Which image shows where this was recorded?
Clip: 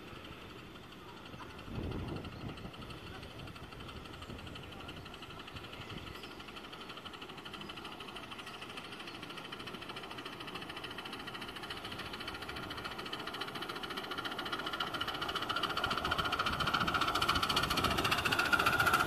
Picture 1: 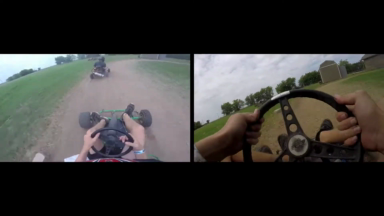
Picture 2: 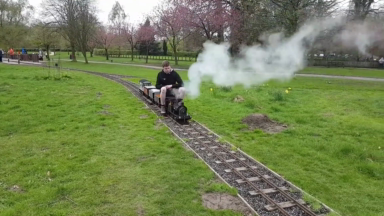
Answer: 2